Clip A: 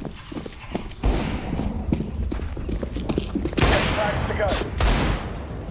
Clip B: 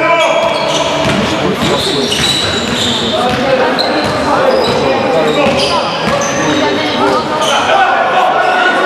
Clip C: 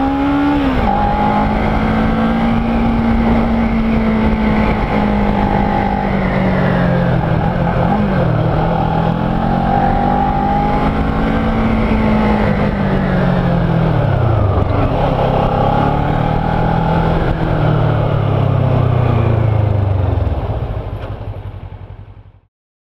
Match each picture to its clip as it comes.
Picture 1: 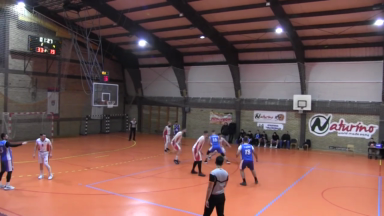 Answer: B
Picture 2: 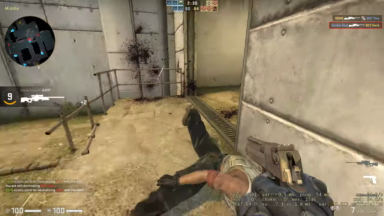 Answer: A